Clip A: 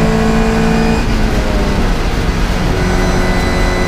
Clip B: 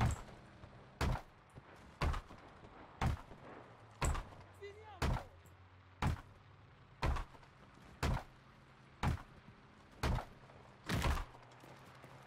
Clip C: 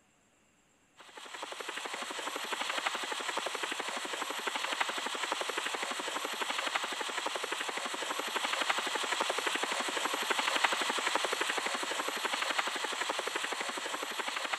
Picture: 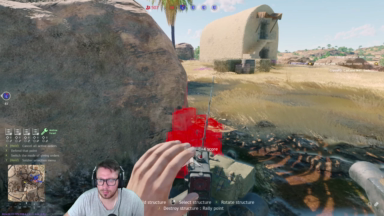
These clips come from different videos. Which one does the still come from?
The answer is B